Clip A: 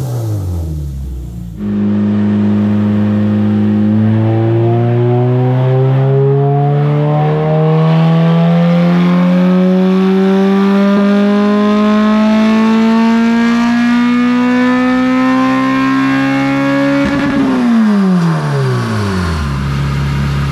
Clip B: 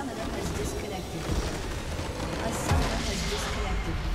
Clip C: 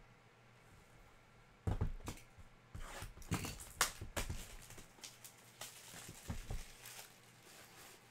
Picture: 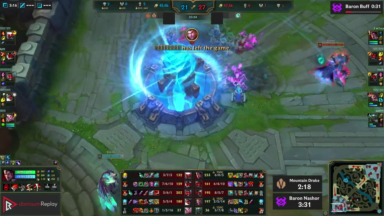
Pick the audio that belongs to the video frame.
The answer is B